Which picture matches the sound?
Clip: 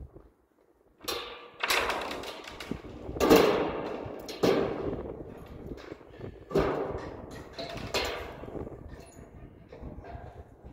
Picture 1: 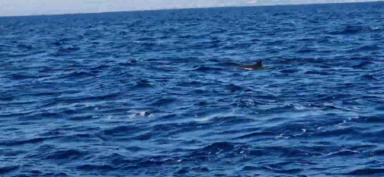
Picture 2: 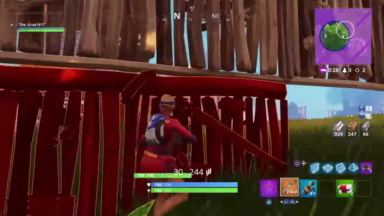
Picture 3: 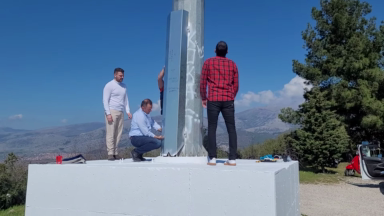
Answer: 3